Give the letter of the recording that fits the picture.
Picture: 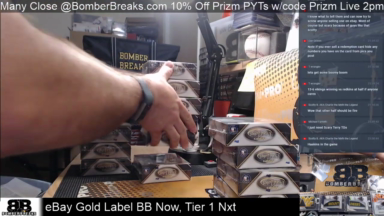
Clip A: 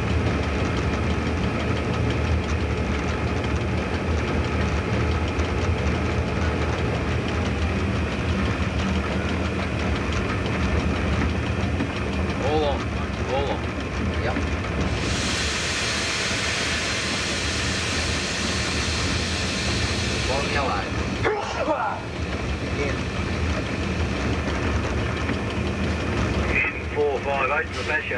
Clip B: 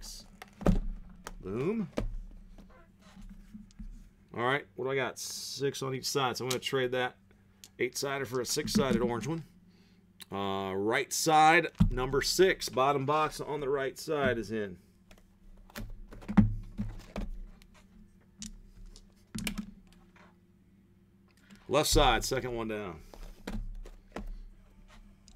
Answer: B